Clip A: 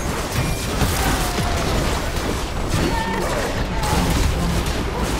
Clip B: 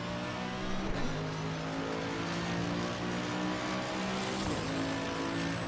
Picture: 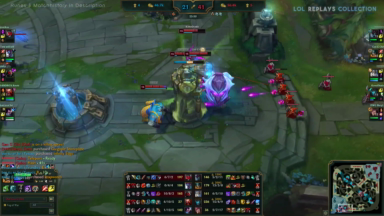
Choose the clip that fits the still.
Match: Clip A